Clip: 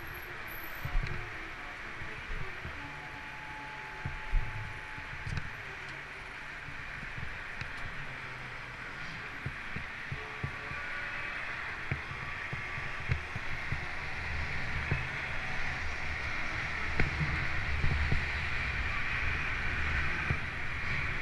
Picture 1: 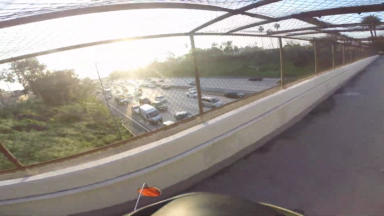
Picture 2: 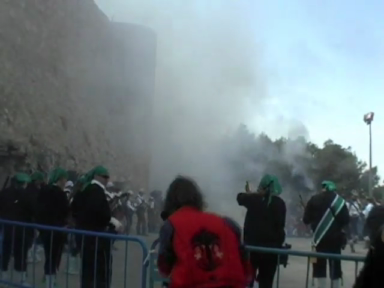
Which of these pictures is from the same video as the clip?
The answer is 1